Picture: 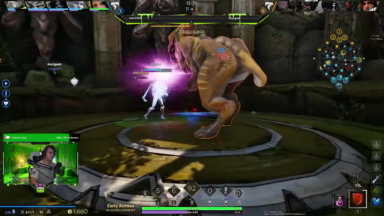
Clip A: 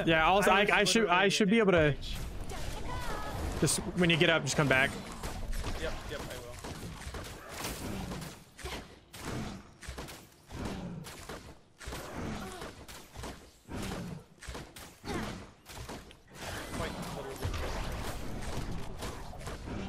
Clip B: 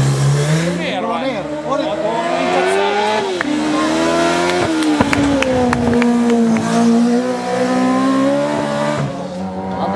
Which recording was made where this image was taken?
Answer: A